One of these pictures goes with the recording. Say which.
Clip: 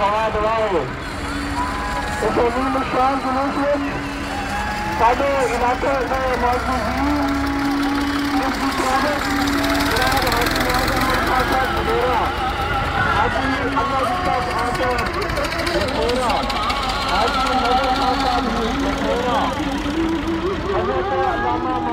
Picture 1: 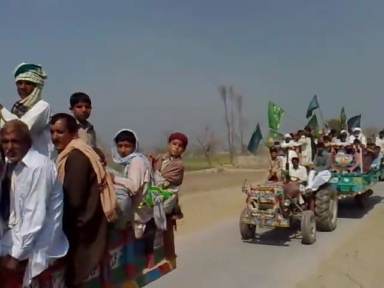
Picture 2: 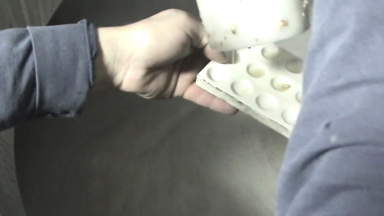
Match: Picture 1